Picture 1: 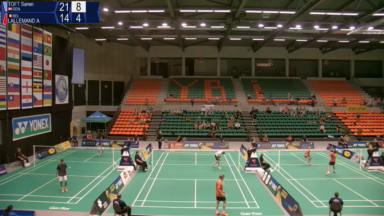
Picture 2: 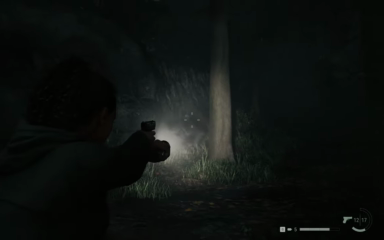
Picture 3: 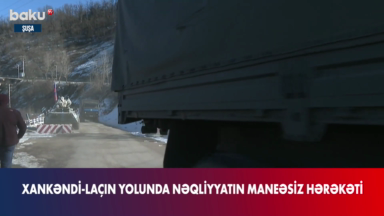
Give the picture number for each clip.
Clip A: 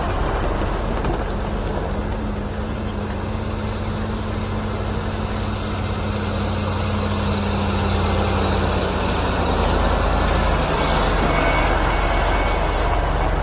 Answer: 3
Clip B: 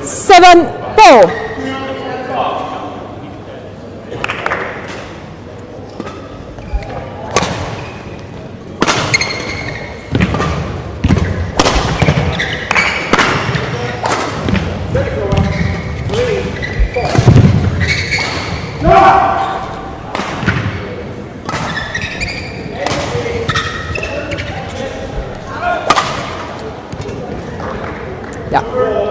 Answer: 1